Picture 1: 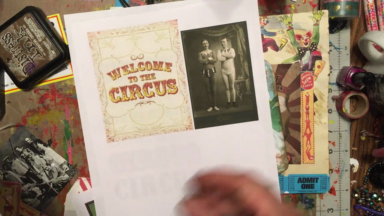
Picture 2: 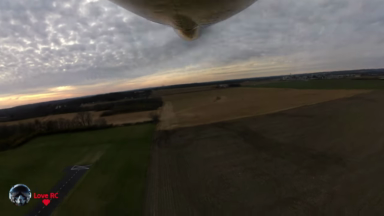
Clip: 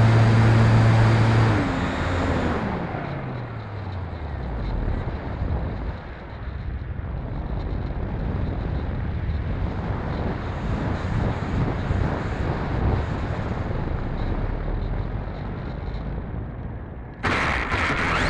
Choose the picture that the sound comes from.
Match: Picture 2